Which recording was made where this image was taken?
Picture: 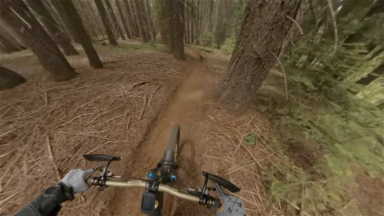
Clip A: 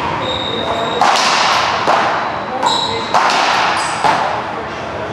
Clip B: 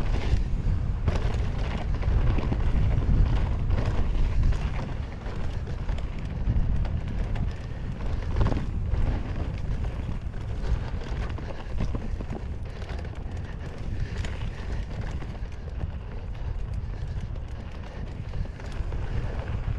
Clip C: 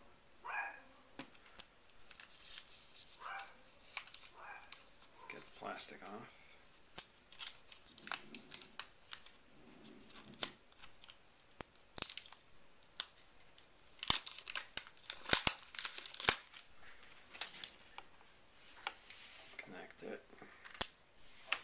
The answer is B